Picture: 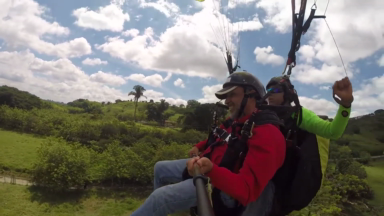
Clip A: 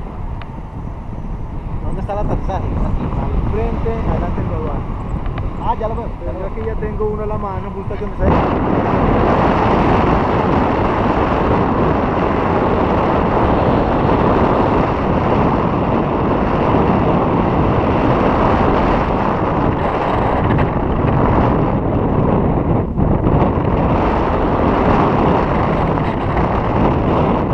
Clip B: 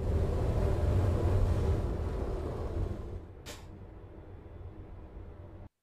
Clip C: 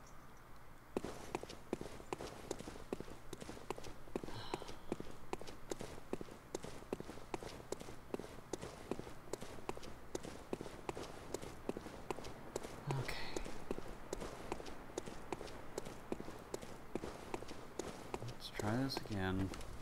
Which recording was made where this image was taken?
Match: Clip A